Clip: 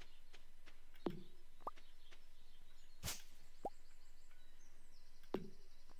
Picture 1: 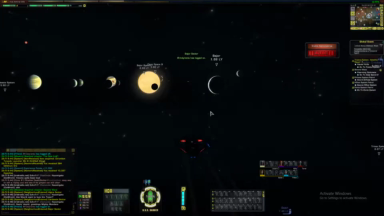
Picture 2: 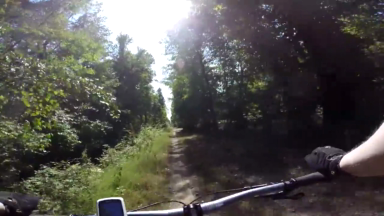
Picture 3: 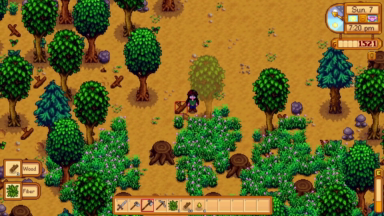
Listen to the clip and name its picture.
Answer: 3